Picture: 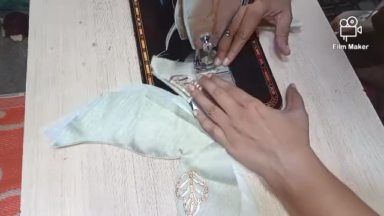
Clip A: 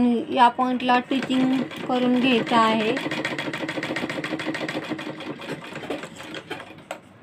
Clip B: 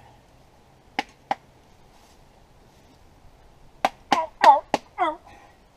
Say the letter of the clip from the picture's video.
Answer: A